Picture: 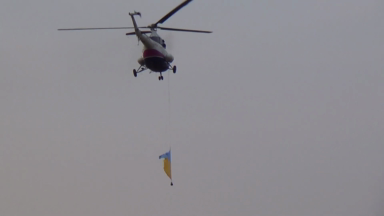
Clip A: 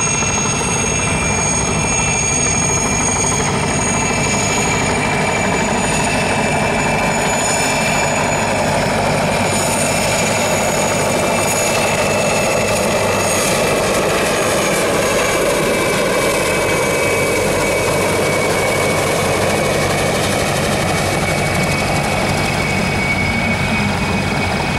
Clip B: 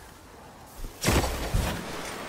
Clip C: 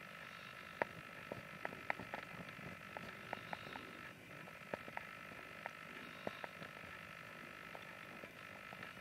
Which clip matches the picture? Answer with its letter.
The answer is A